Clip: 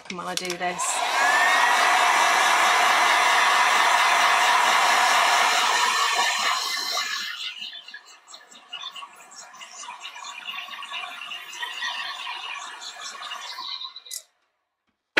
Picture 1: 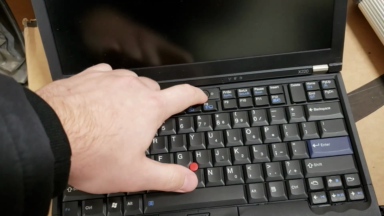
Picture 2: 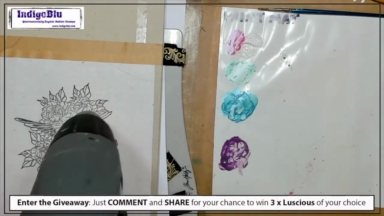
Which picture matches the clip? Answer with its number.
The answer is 2